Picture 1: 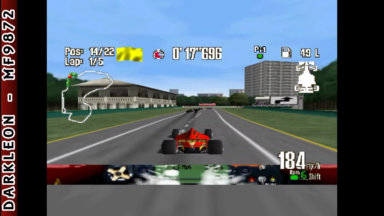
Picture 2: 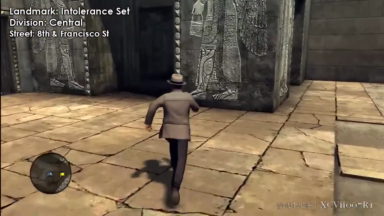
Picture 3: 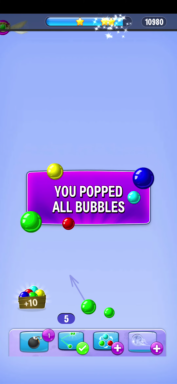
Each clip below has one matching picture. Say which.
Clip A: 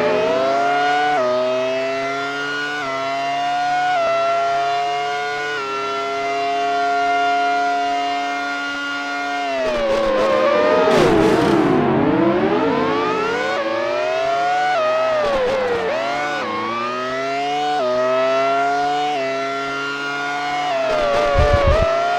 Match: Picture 1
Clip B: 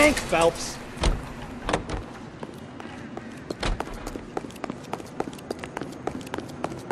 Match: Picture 2